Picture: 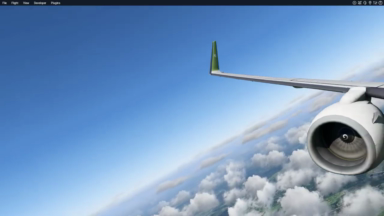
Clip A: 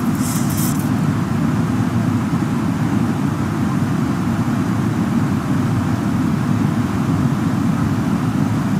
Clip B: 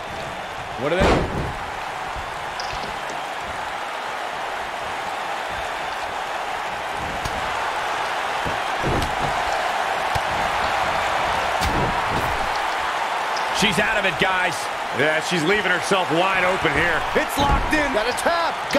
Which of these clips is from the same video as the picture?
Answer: A